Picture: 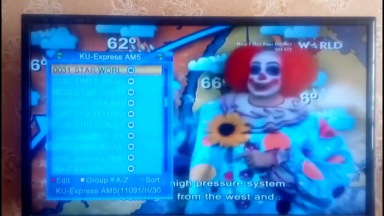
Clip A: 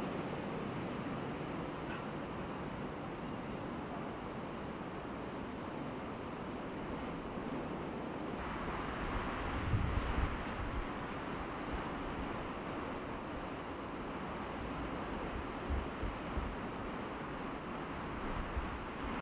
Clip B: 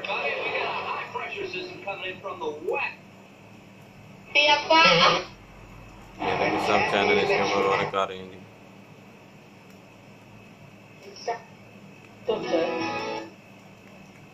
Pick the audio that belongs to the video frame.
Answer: B